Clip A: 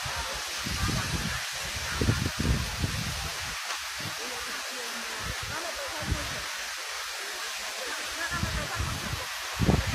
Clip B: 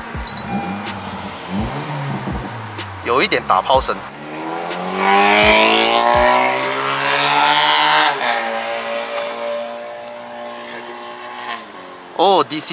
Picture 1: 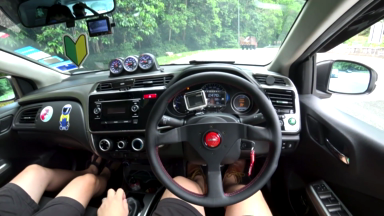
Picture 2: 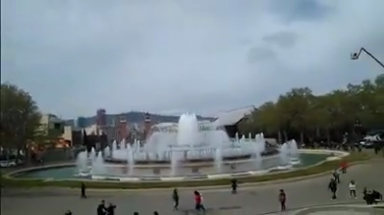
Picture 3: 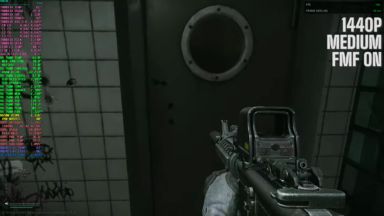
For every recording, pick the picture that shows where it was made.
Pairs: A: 2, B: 1